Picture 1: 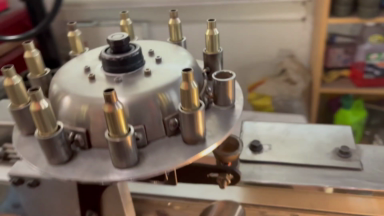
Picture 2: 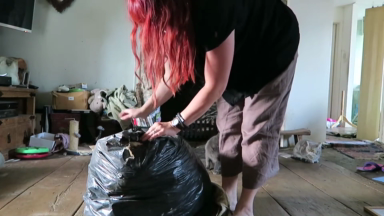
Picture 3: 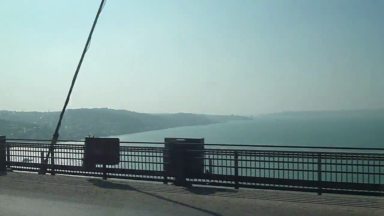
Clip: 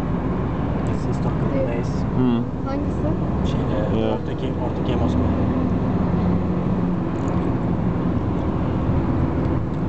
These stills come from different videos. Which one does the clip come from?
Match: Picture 3